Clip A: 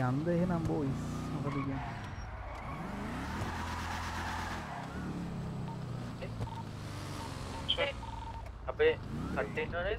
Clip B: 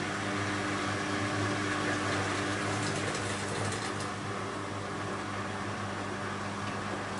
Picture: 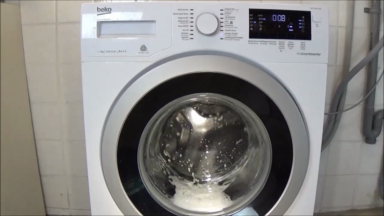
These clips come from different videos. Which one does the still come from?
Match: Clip B